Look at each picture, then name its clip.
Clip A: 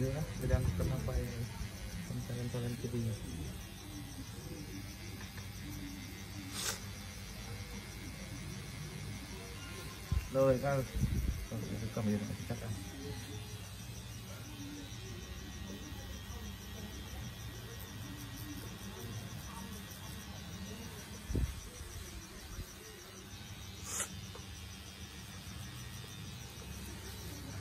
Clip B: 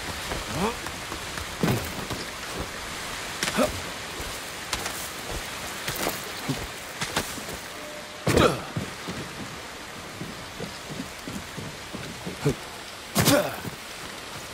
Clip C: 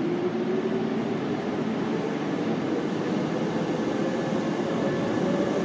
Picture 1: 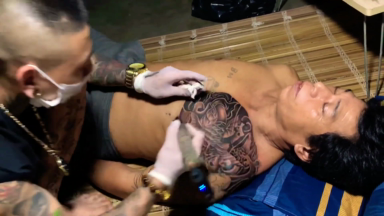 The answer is A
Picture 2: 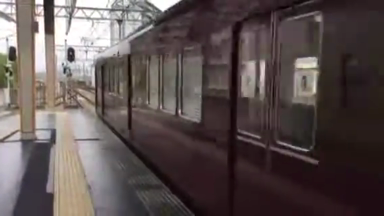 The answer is C